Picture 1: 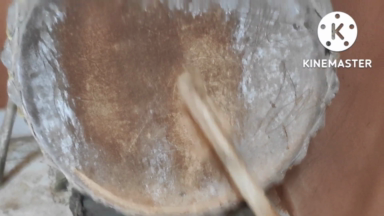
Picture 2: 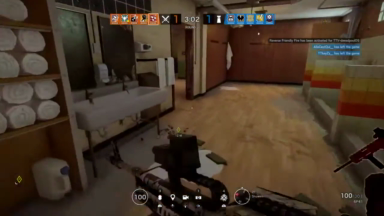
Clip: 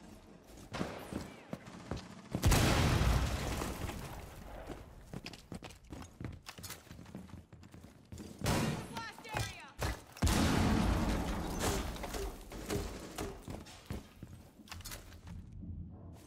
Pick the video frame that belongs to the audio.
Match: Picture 2